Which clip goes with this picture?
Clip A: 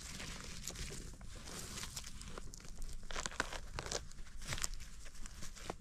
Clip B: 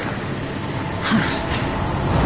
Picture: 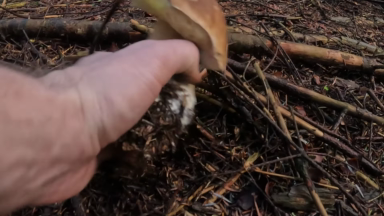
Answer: A